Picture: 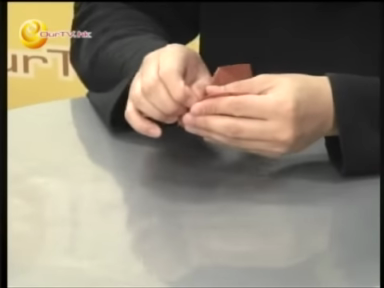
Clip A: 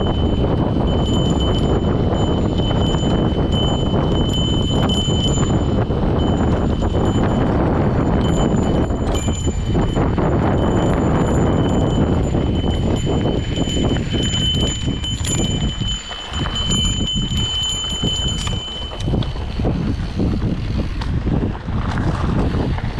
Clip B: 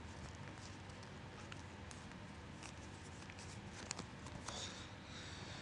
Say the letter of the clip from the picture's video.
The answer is B